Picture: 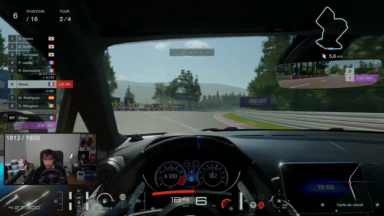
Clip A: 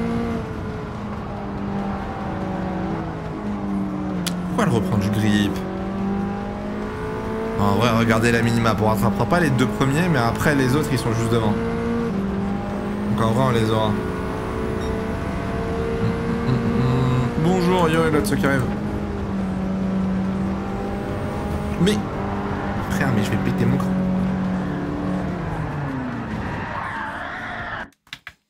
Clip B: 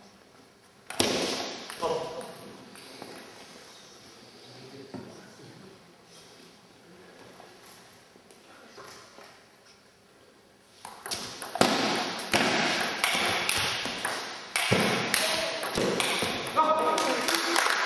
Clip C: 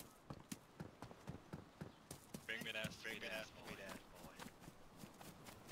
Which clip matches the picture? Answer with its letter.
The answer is A